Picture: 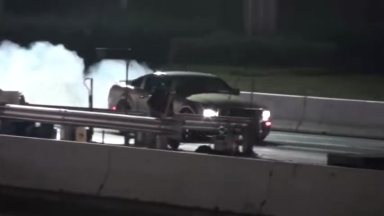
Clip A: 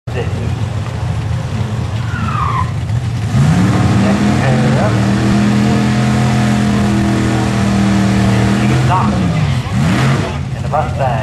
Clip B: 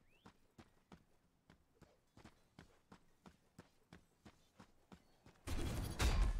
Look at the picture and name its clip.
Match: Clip A